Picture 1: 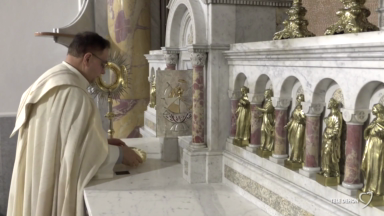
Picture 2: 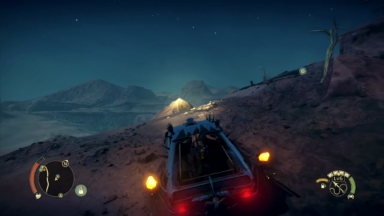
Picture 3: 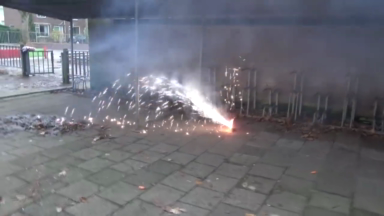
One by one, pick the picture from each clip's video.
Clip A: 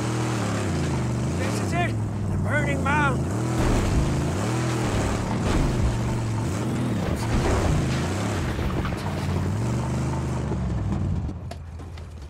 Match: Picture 2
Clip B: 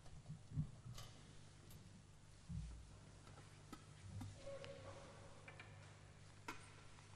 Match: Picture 1